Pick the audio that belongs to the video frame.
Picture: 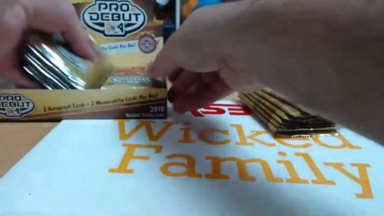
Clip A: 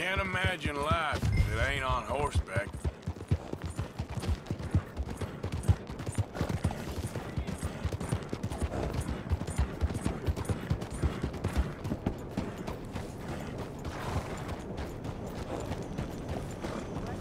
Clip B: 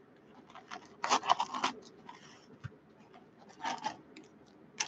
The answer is B